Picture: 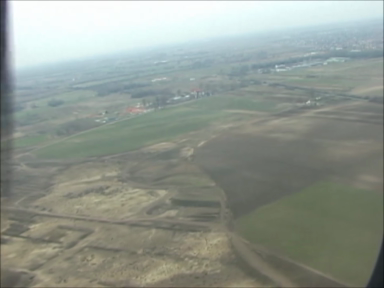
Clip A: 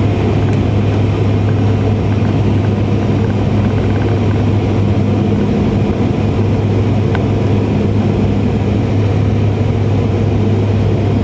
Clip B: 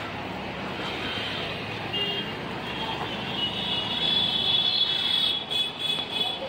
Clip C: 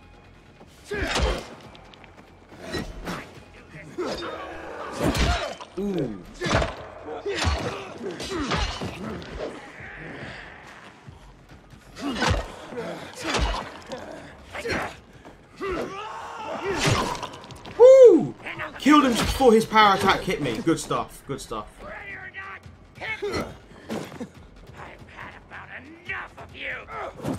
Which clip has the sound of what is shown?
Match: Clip A